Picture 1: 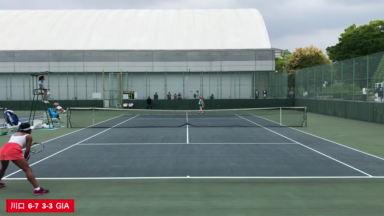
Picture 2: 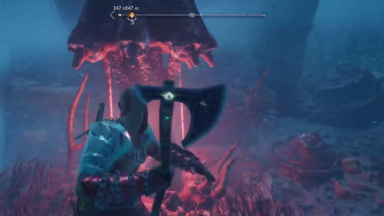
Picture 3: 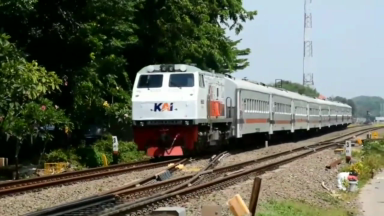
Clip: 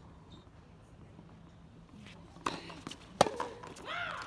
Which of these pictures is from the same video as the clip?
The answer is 1